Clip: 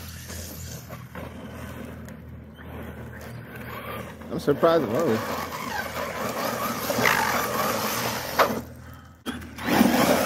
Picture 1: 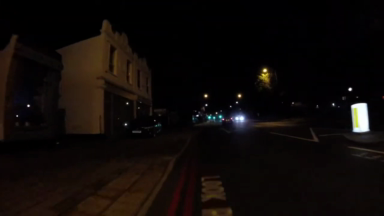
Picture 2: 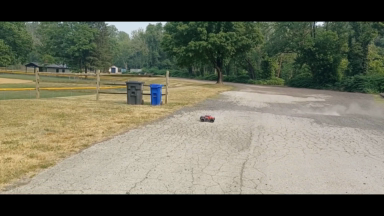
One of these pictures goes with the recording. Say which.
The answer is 2